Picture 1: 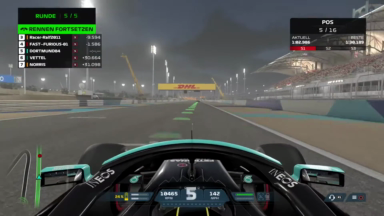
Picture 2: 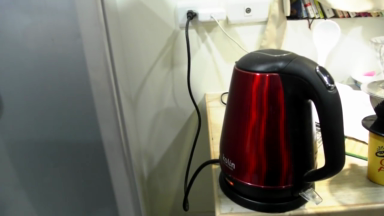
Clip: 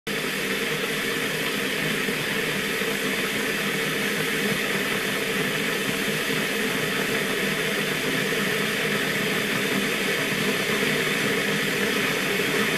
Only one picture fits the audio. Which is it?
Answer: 2